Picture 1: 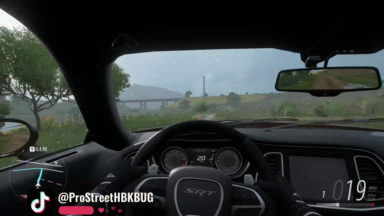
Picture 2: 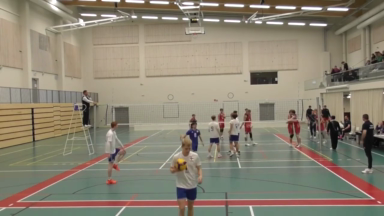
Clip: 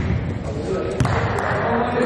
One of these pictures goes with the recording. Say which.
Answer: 2